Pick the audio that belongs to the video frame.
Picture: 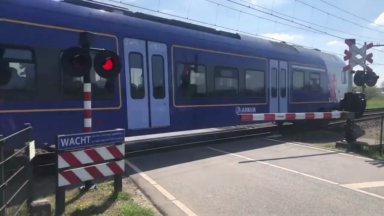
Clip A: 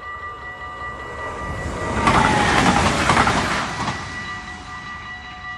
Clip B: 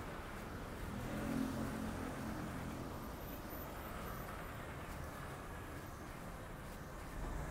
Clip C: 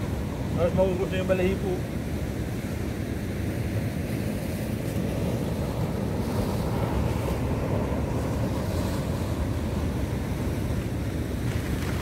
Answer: A